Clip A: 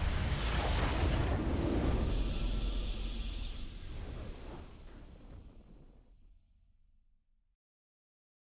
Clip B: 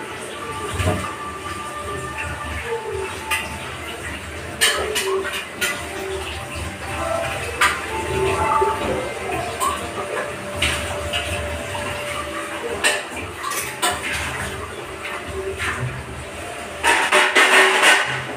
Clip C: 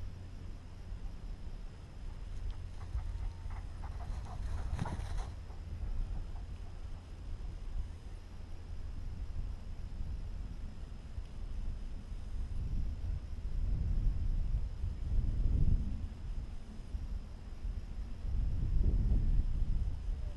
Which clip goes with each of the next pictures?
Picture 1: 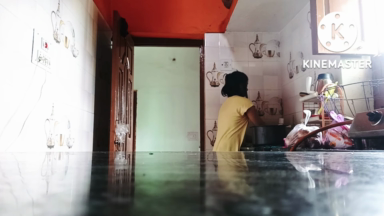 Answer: B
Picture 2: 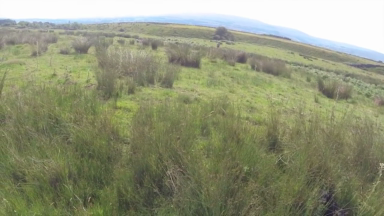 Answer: C